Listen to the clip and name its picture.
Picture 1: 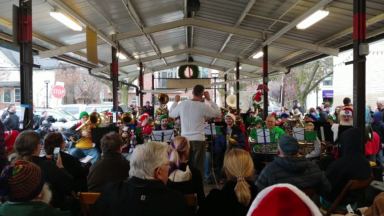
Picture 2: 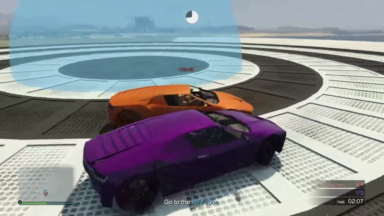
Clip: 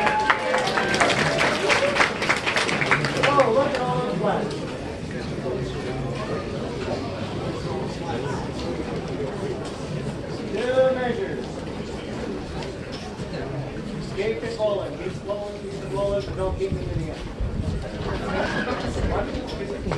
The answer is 1